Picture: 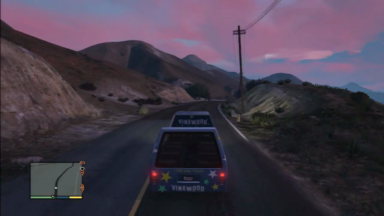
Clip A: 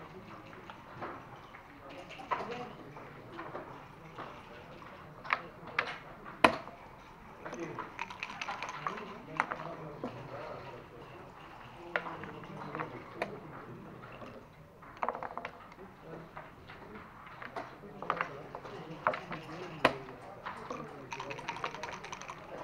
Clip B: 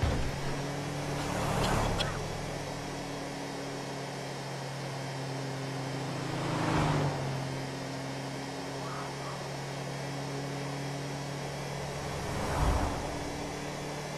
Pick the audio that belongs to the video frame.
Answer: B